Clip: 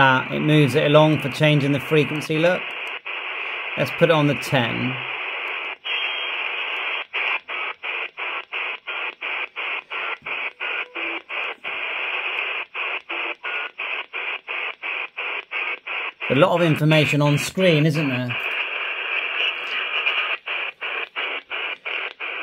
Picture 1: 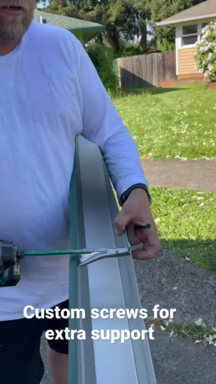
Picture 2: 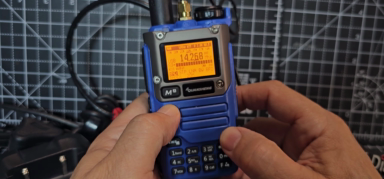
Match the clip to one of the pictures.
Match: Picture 2